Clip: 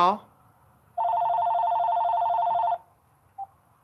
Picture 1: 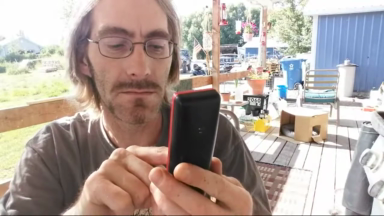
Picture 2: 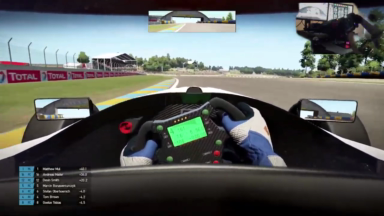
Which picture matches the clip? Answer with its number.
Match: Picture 1